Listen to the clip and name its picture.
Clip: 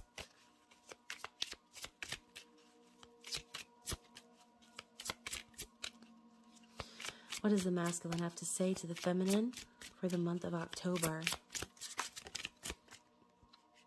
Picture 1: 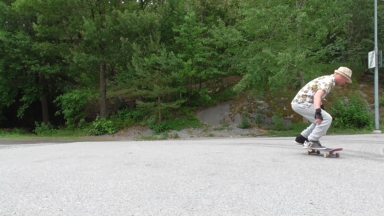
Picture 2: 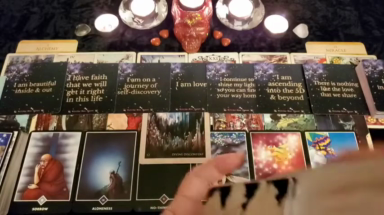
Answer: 2